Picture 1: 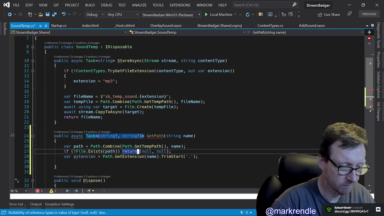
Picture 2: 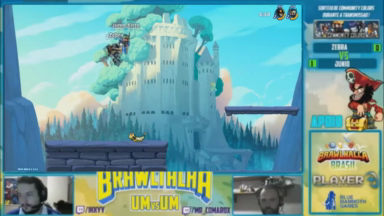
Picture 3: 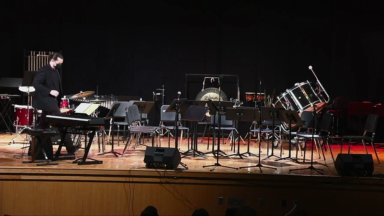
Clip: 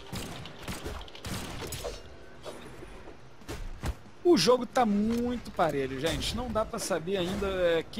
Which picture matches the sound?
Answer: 2